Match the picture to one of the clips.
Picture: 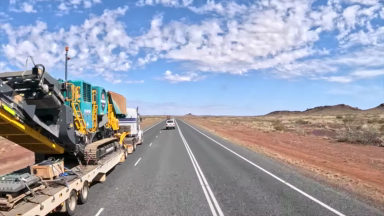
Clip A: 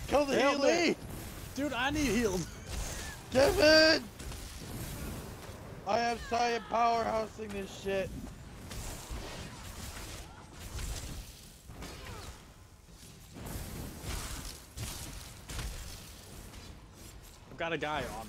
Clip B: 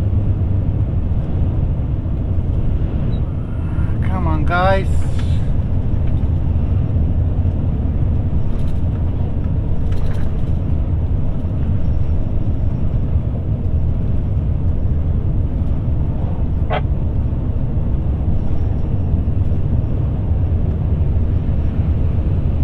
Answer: B